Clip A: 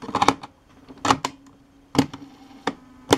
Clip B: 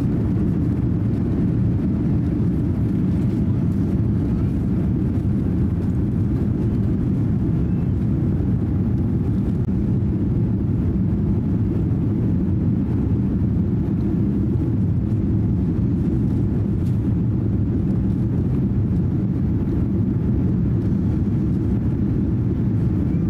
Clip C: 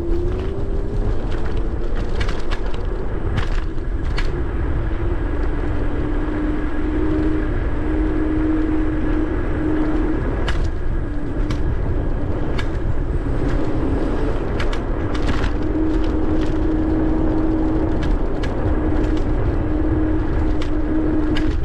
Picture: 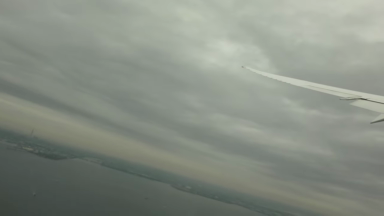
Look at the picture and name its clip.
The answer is B